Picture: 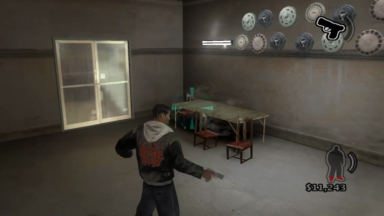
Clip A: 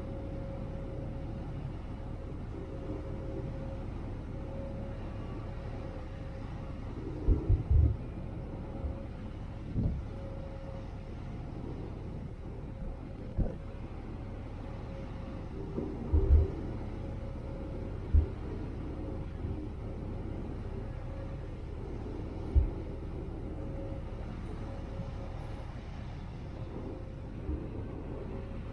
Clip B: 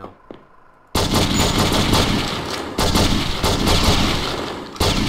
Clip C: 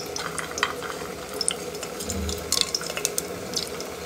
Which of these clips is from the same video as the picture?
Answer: B